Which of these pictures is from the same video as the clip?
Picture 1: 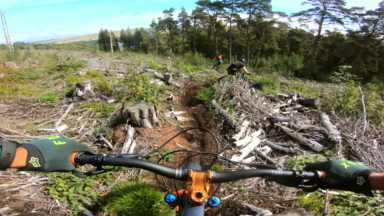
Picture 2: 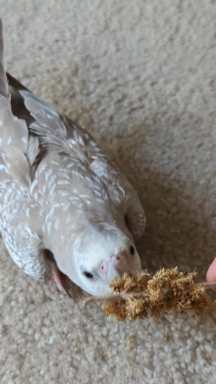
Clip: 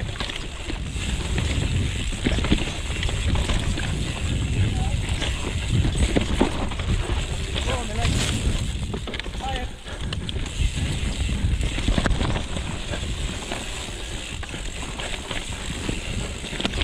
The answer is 1